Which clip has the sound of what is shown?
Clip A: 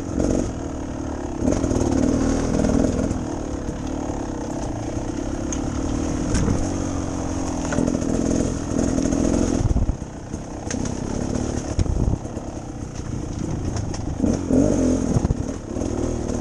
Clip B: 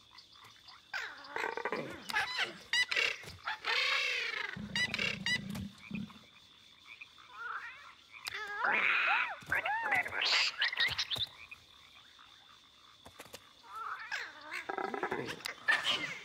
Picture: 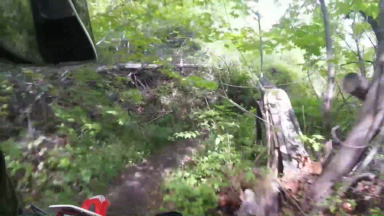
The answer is A